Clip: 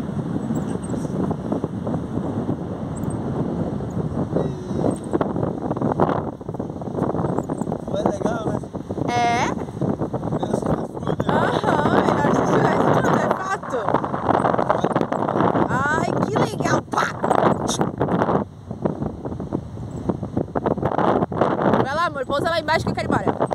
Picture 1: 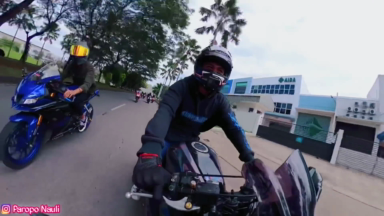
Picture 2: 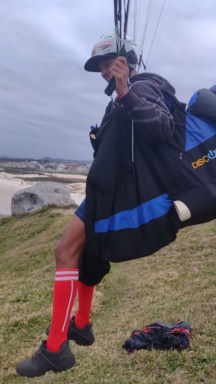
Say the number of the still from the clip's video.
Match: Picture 2